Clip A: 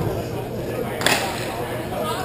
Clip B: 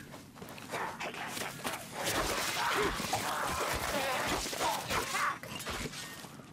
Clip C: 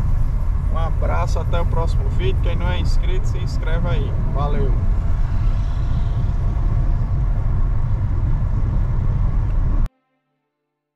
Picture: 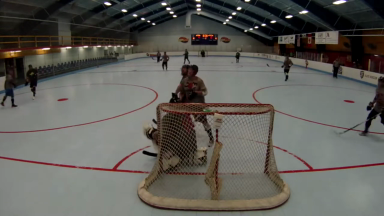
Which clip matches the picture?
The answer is A